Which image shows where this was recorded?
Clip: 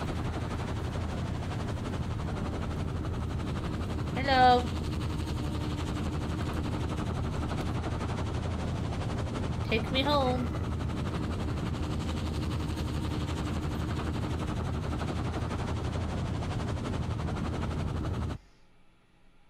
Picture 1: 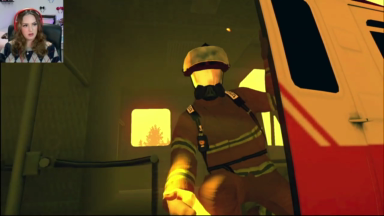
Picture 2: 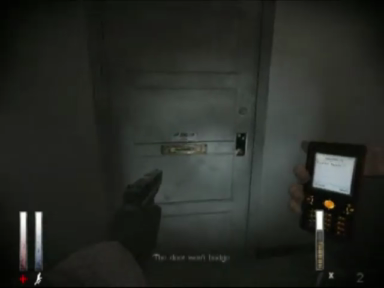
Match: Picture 1